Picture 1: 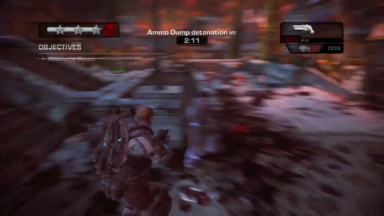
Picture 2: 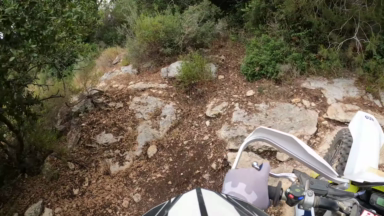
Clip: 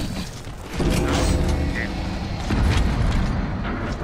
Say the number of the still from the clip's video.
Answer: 1